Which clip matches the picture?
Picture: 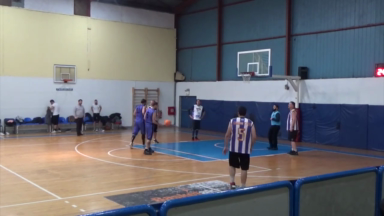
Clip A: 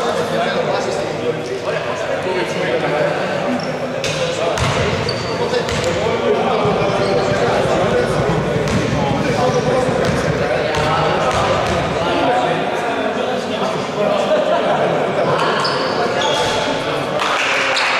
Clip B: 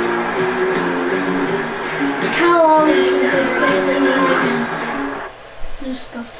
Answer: A